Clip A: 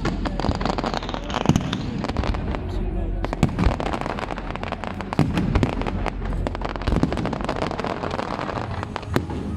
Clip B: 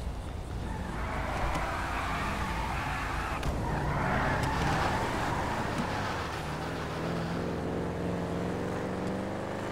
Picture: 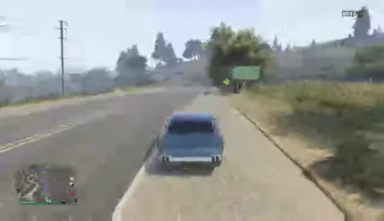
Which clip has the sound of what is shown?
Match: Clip B